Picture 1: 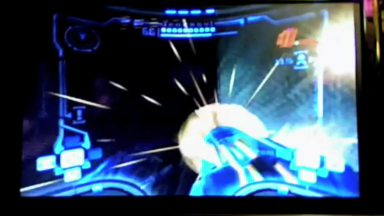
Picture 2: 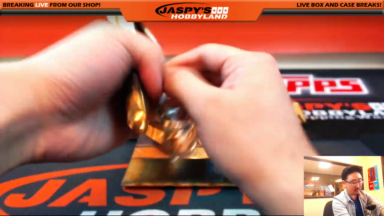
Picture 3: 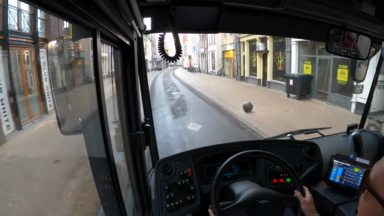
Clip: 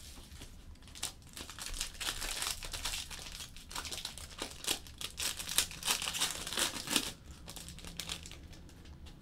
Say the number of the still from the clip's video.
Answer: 2